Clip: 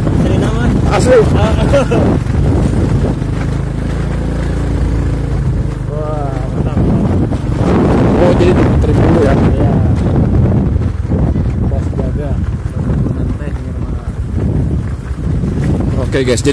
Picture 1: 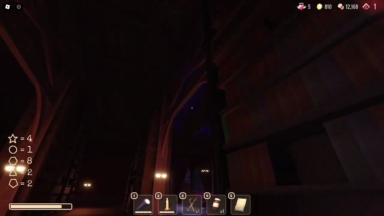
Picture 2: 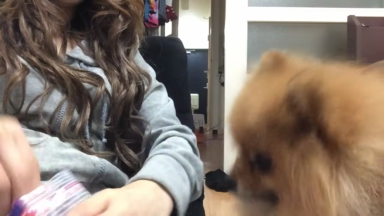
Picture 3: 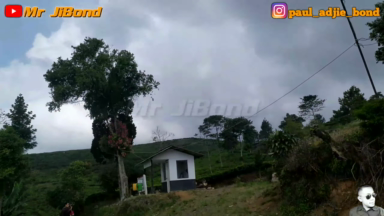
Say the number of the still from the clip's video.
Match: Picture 3